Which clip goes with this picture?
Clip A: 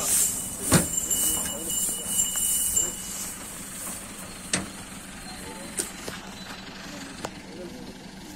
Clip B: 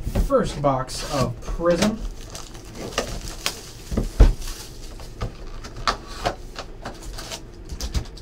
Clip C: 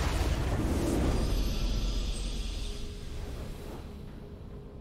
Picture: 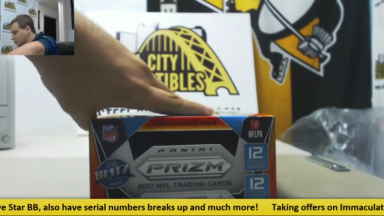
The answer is B